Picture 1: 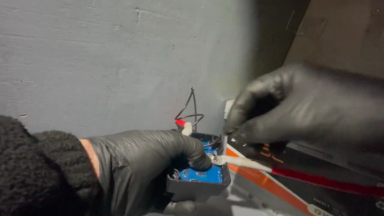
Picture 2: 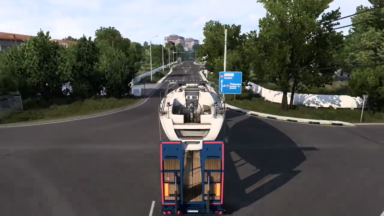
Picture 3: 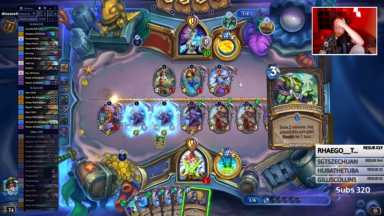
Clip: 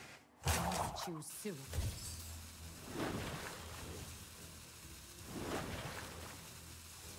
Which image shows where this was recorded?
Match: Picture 3